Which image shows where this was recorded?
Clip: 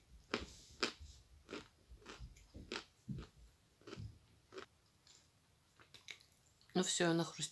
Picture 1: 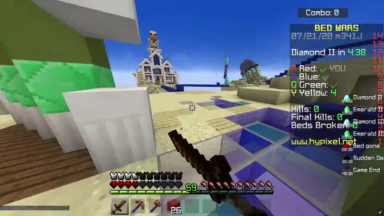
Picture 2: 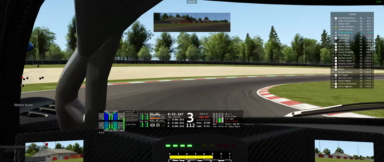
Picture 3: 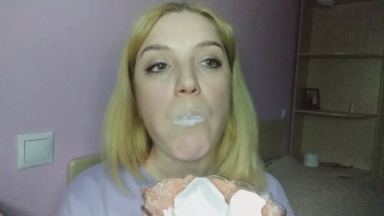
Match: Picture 3